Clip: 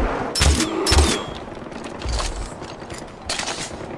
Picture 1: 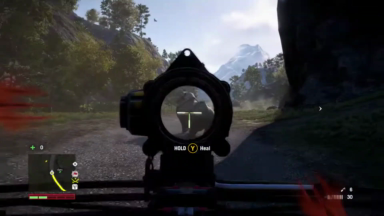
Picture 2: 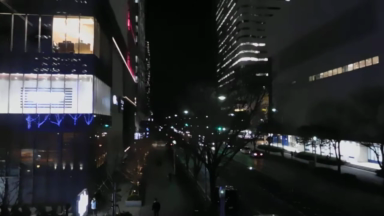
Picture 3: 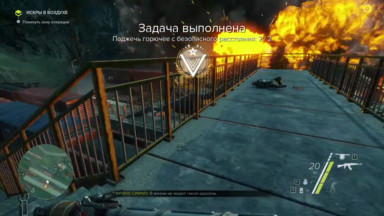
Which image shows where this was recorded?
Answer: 1